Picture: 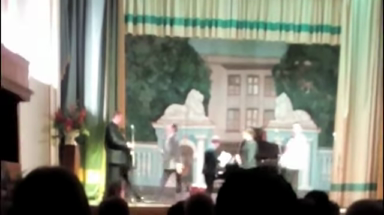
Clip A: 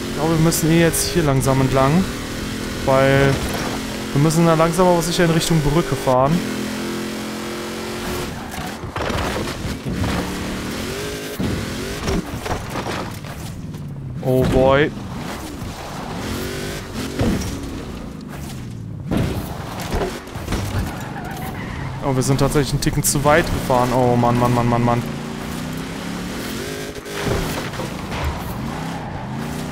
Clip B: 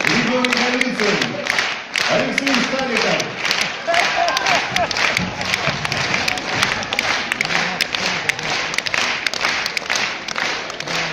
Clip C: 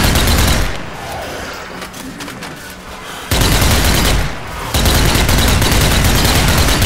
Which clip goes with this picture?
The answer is B